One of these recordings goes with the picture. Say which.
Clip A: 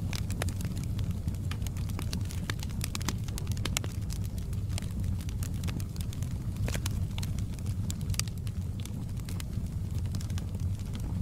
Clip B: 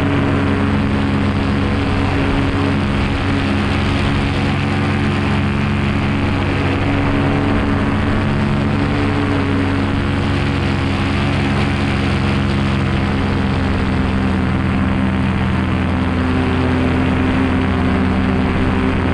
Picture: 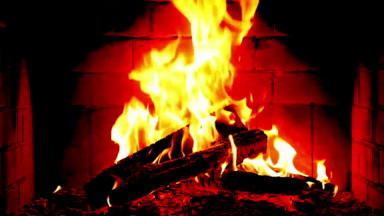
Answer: A